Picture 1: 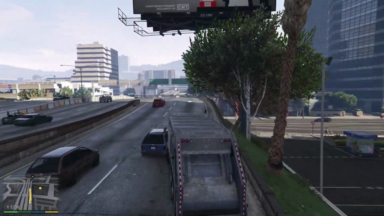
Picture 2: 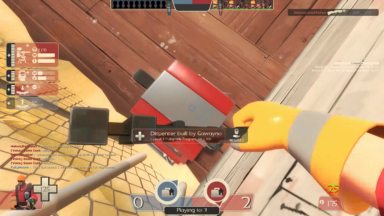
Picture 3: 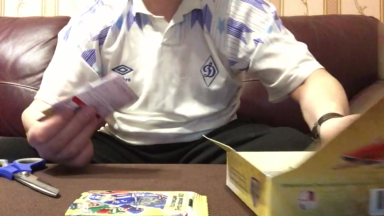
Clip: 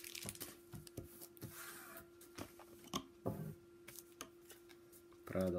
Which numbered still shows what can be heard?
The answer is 3